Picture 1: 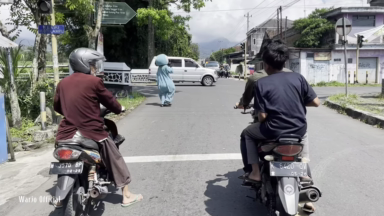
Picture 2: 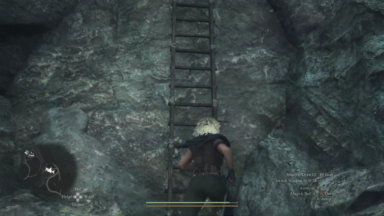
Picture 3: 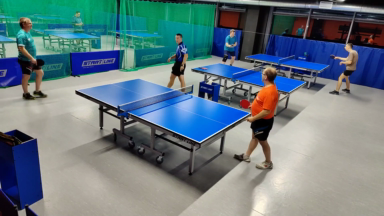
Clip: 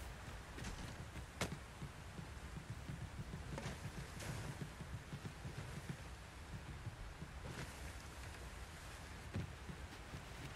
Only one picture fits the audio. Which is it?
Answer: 2